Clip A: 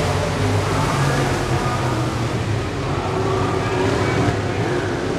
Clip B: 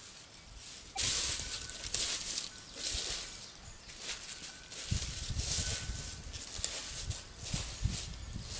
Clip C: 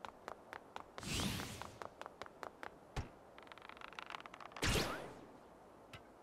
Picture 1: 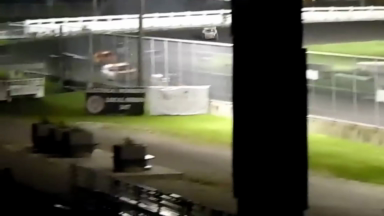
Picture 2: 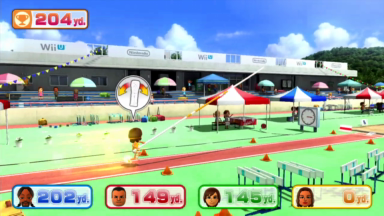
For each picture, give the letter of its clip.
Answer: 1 A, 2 C